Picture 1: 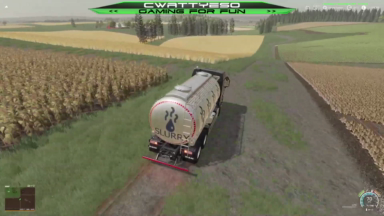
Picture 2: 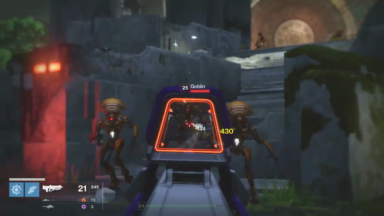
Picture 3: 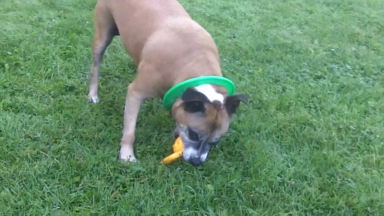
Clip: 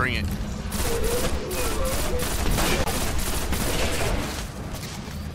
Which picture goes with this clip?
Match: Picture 2